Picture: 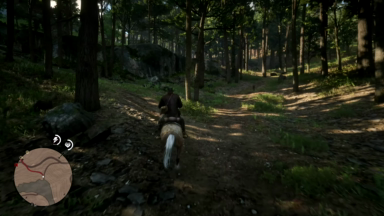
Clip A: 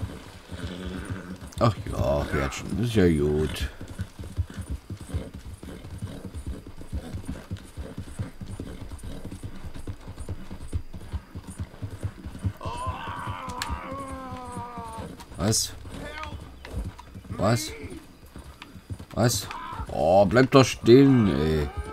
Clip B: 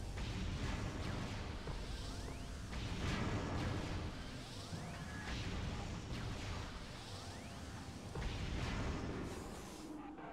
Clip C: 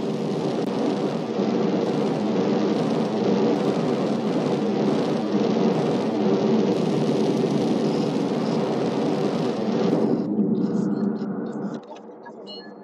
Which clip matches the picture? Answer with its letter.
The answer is A